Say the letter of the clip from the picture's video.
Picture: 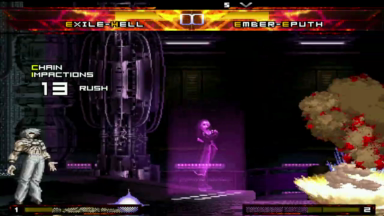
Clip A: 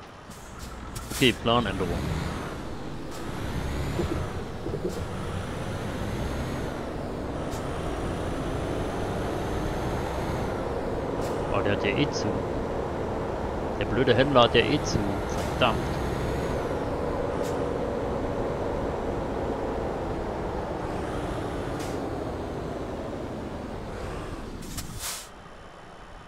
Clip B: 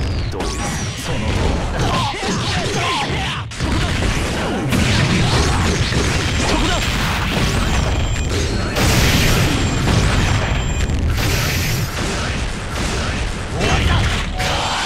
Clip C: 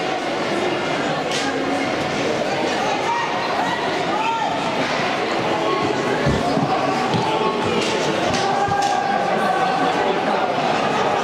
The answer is B